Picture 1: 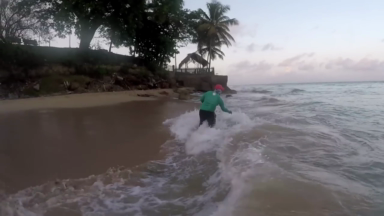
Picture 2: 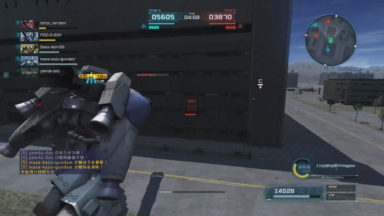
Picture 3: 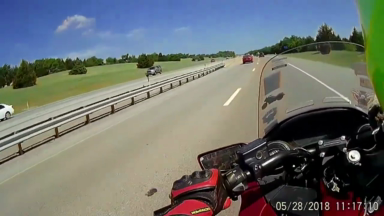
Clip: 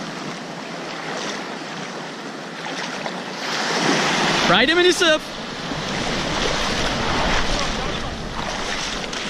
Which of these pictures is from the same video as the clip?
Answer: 1